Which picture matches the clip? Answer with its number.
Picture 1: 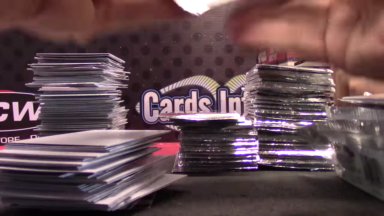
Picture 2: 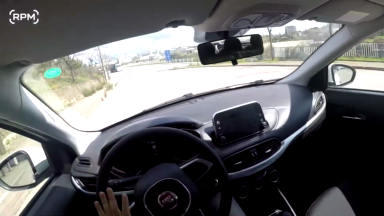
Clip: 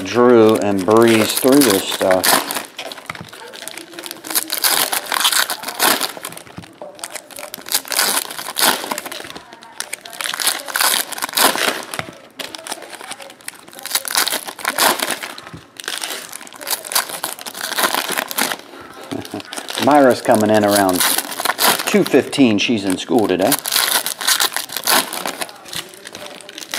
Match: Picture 1